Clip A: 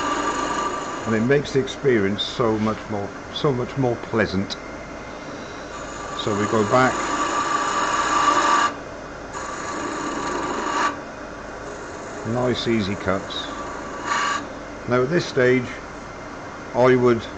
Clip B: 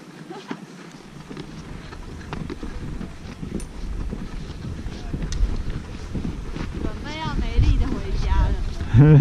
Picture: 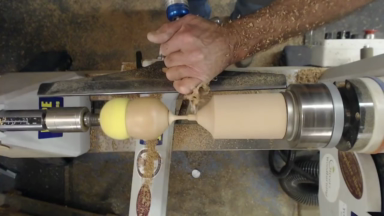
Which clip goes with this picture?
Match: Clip A